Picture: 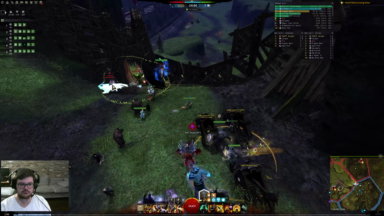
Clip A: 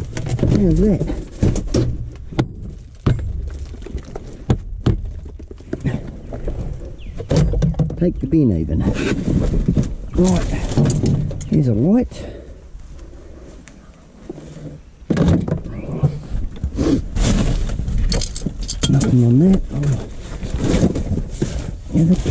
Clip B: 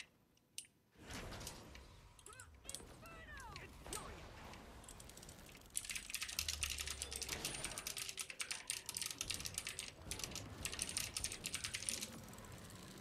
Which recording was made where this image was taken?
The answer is B